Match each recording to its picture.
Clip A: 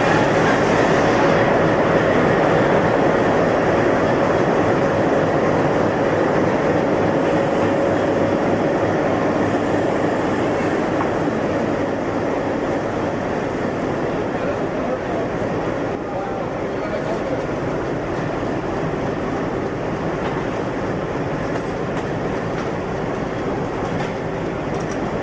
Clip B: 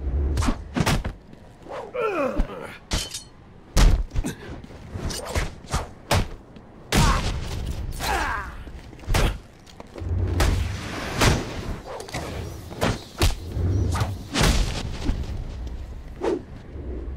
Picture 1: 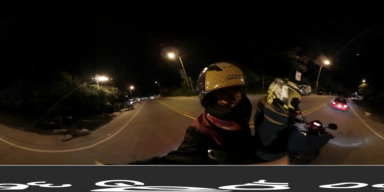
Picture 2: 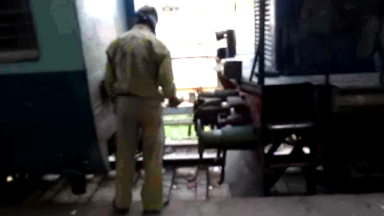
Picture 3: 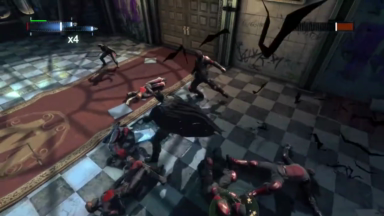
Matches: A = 2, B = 3